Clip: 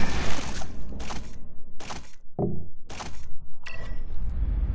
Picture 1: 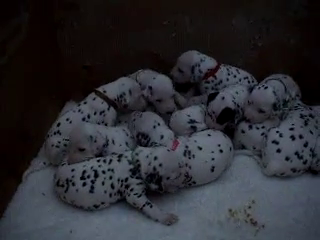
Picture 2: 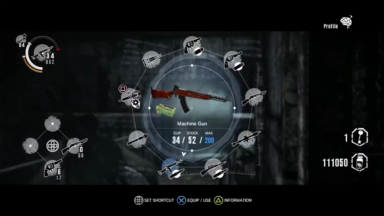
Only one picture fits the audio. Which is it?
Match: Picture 2